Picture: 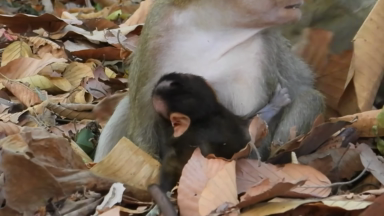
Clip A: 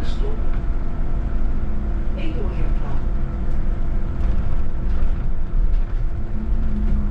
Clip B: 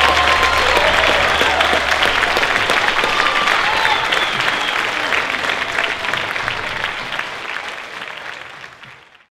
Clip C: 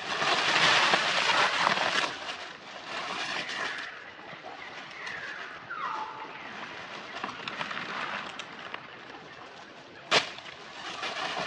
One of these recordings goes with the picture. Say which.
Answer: C